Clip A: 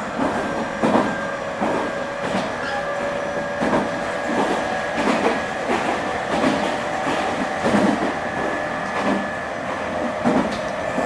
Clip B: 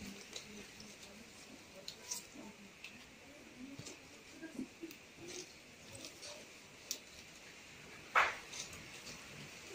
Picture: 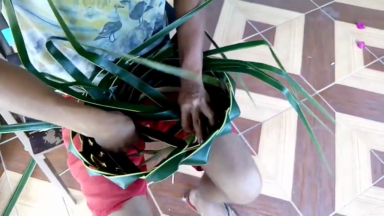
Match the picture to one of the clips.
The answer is B